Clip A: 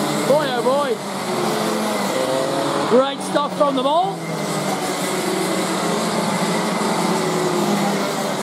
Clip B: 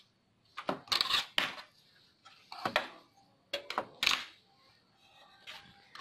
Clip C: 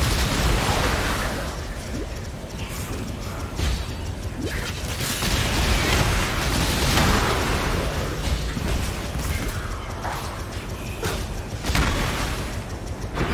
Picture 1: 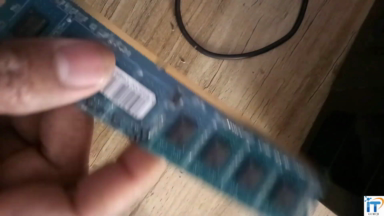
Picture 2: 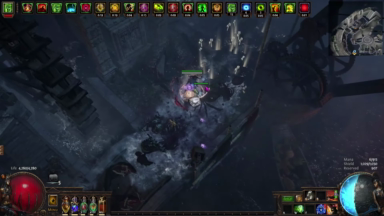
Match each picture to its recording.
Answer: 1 B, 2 C